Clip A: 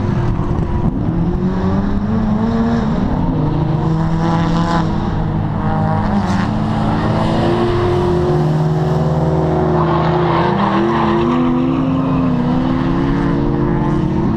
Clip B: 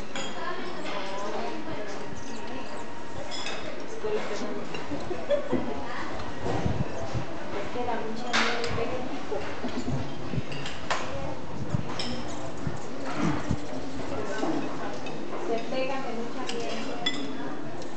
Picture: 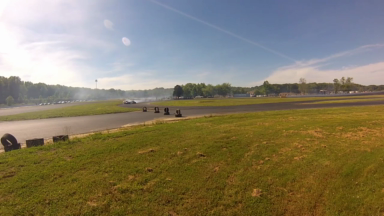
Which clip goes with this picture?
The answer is A